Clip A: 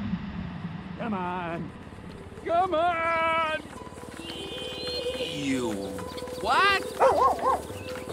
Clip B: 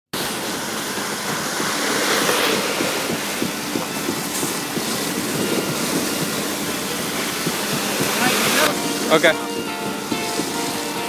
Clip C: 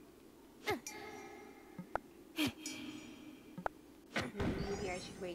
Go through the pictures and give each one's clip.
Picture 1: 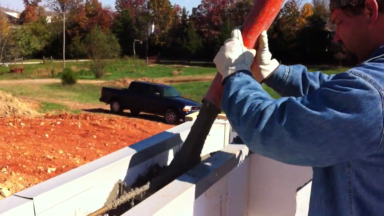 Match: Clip B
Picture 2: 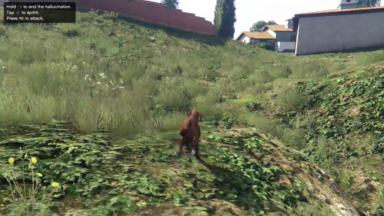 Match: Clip A